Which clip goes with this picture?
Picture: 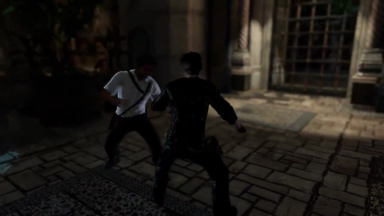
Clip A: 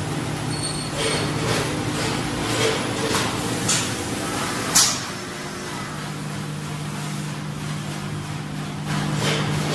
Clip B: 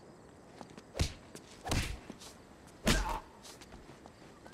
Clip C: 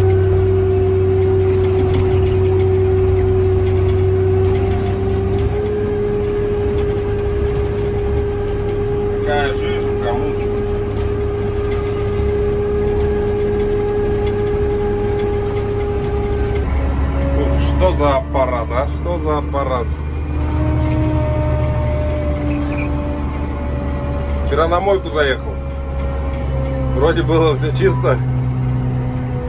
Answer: B